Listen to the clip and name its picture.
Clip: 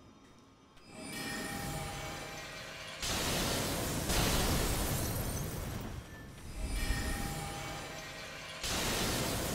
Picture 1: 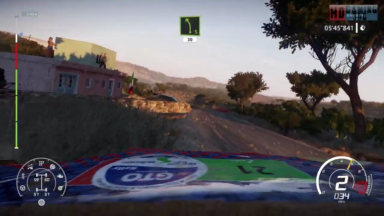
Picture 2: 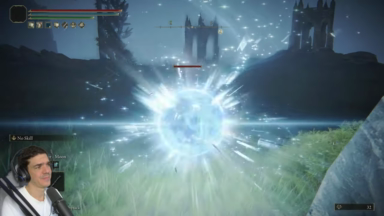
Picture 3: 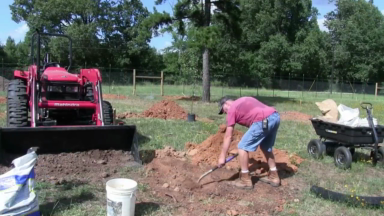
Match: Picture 2